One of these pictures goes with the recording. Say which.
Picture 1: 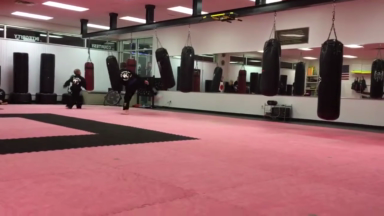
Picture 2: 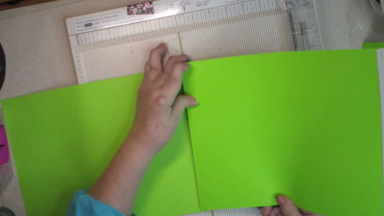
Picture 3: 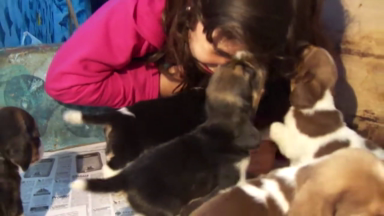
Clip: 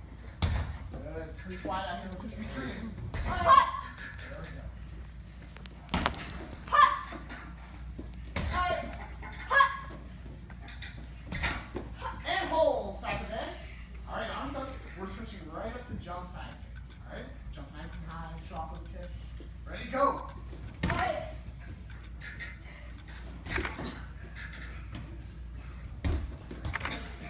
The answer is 1